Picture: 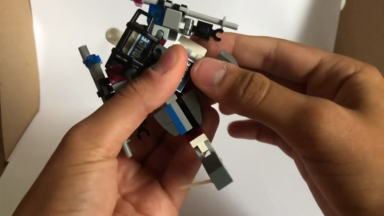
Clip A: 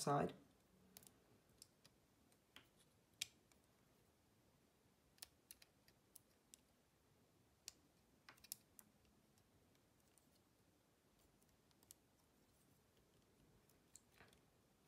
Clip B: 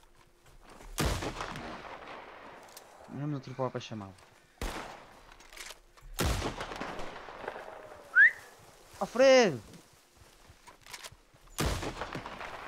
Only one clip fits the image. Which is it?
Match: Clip A